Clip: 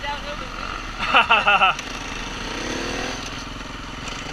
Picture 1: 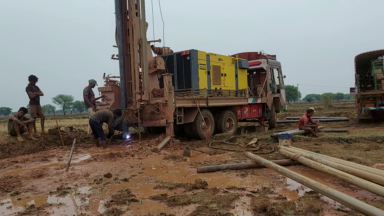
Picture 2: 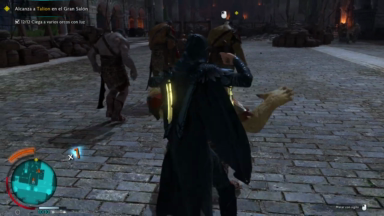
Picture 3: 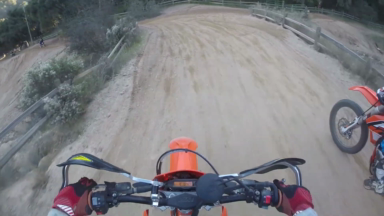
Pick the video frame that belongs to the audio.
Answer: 3